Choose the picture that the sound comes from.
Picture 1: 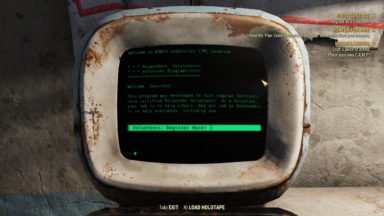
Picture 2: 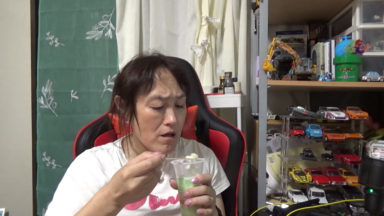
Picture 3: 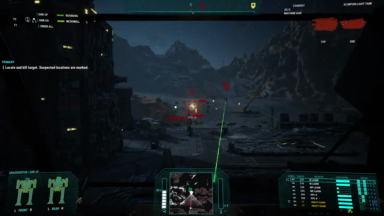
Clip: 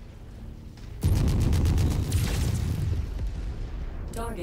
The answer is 3